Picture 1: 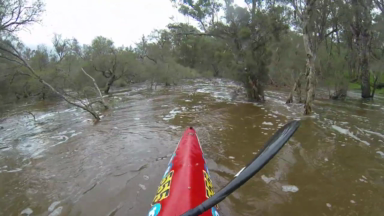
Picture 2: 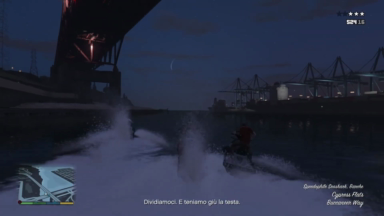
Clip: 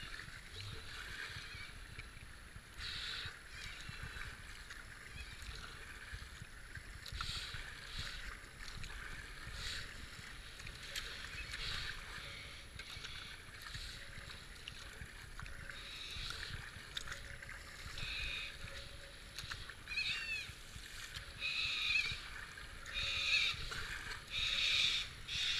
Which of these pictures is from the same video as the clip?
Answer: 1